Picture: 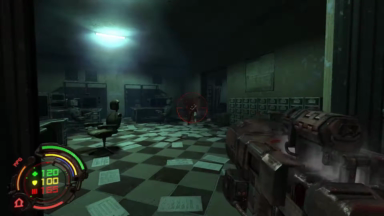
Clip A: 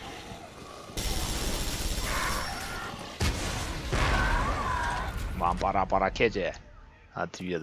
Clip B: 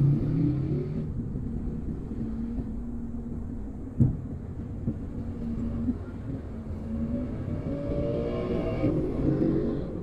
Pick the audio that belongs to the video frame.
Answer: A